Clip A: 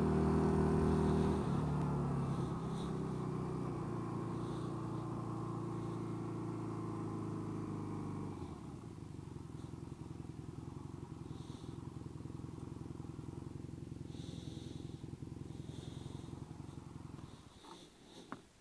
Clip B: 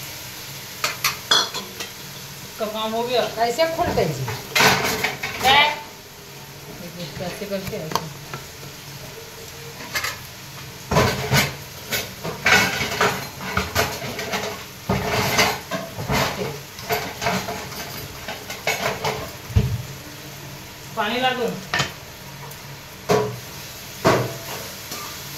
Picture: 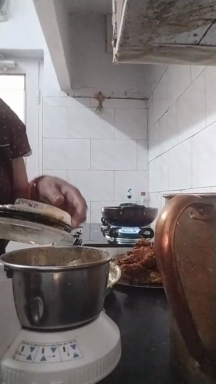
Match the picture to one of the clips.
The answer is B